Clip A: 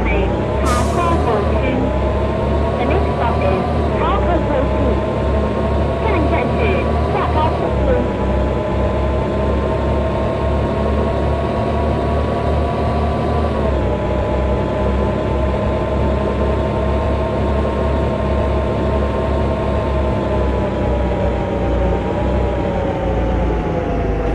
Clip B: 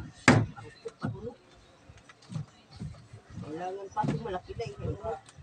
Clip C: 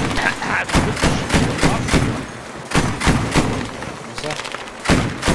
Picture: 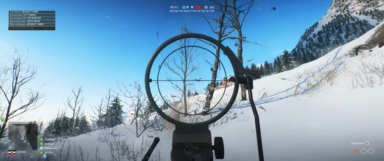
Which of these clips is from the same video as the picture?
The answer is C